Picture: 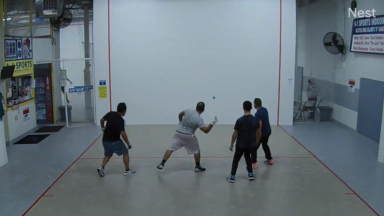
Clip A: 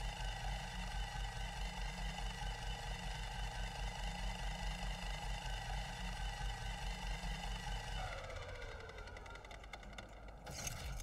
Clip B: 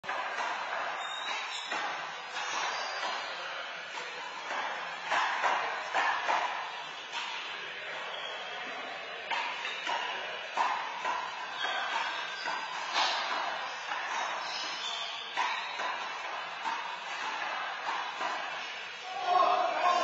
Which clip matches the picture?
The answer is B